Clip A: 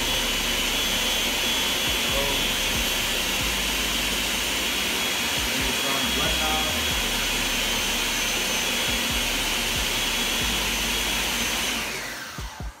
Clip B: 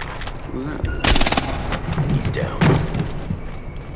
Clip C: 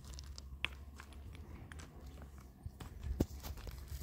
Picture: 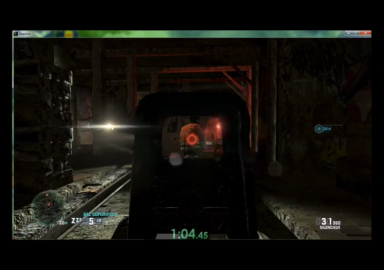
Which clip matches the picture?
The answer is B